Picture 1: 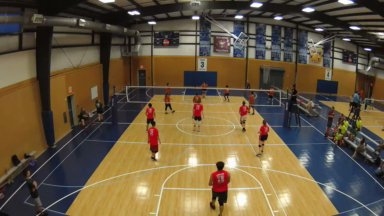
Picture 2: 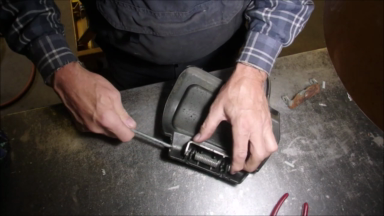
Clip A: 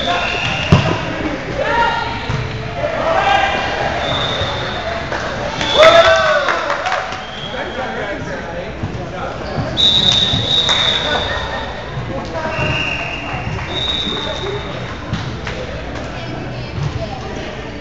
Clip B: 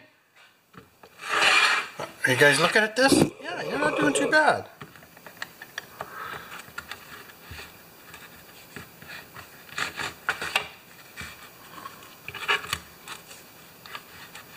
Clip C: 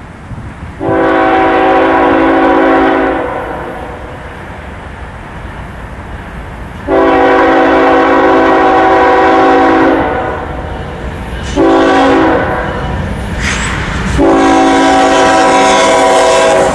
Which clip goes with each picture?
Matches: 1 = A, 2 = B